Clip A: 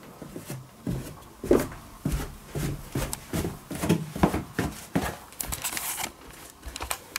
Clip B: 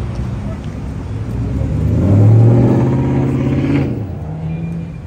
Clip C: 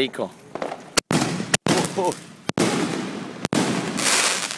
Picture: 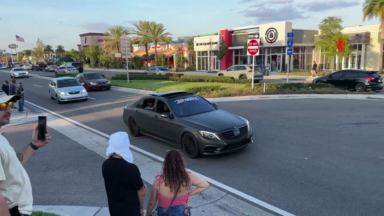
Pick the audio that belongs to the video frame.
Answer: B